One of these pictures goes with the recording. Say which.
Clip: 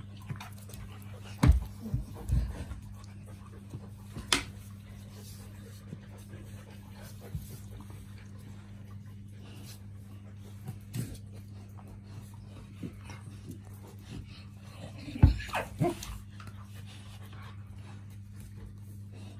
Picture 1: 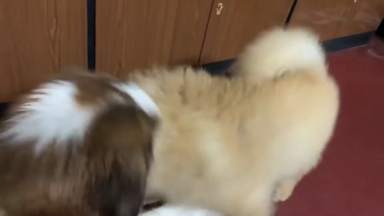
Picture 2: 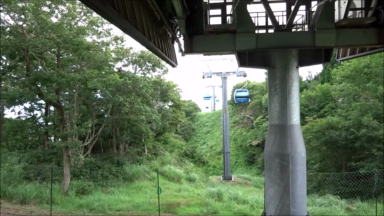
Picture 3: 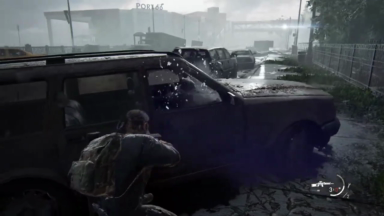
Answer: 1